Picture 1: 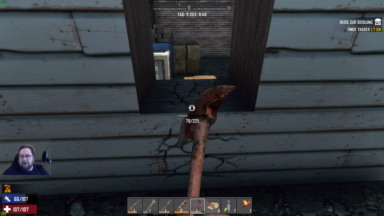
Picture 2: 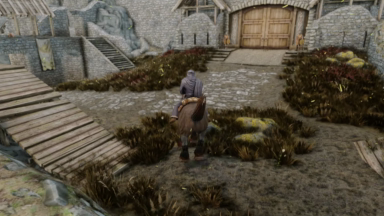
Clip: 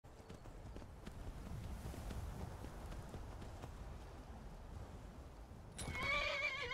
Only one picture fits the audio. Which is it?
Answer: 2